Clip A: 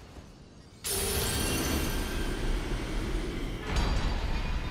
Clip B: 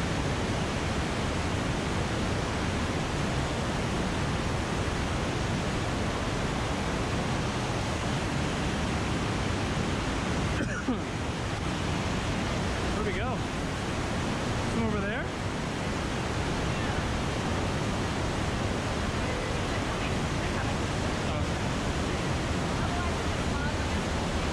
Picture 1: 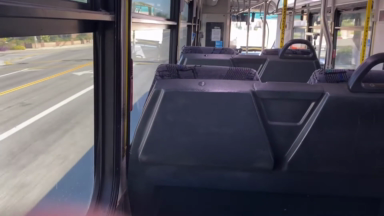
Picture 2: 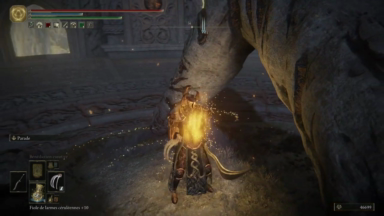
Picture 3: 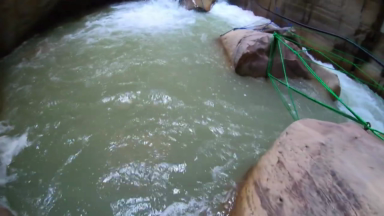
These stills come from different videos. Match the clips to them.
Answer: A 2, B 3